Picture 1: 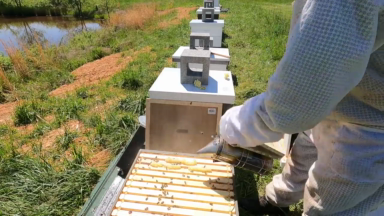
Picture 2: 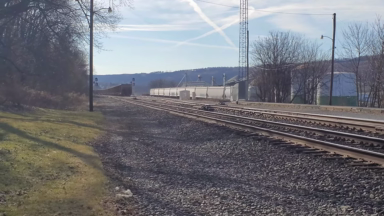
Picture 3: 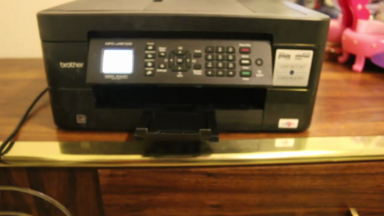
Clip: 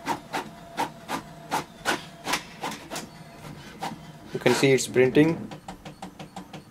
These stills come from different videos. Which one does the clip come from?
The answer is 3